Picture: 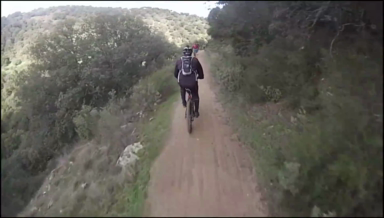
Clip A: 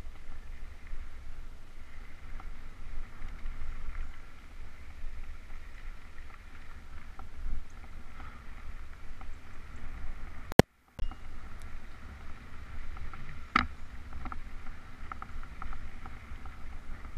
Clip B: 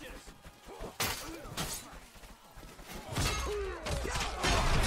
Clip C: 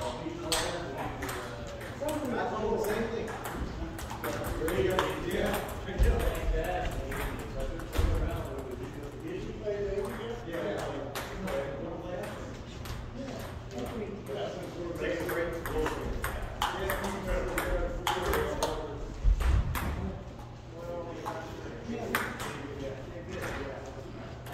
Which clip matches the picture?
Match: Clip A